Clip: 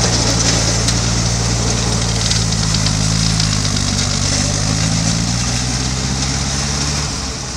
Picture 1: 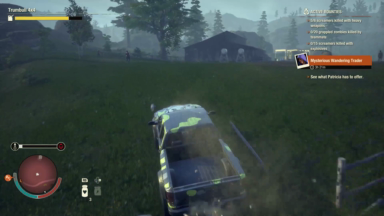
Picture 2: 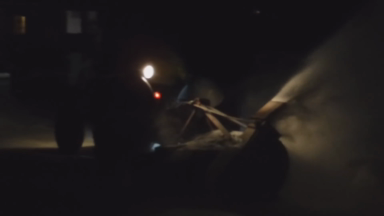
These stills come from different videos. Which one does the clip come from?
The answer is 2